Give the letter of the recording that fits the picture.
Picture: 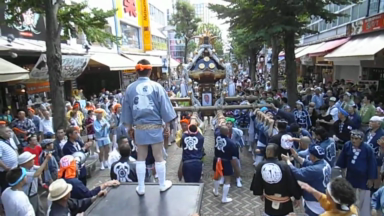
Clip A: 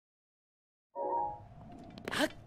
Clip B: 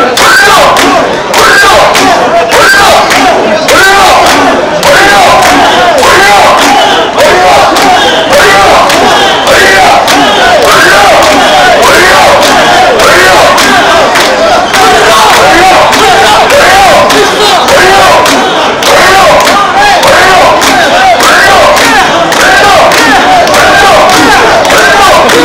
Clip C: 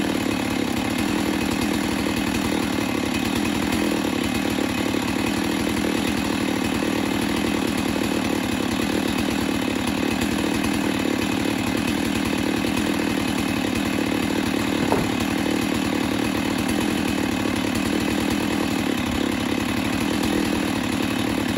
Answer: B